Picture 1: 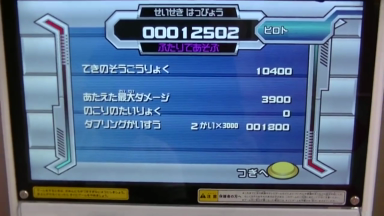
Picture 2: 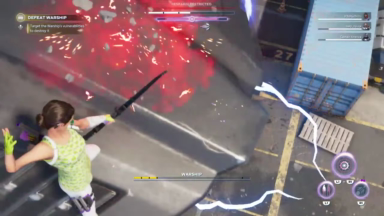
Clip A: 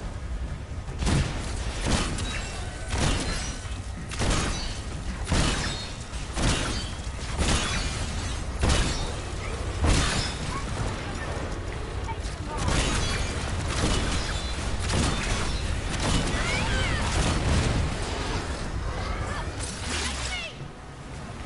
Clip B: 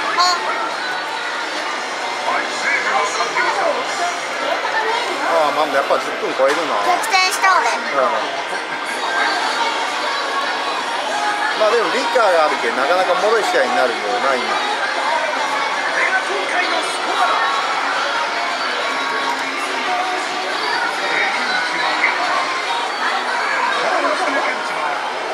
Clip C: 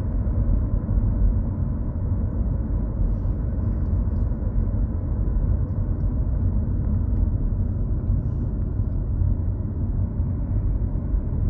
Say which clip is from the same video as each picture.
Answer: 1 B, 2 A